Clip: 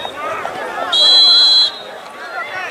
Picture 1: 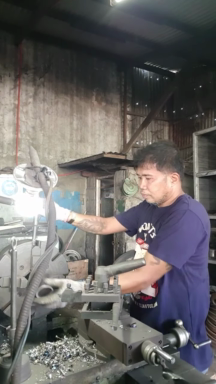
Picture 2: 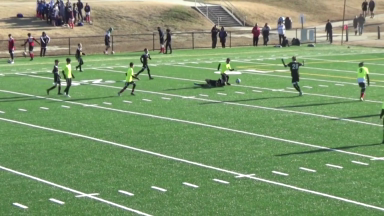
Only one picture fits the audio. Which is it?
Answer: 2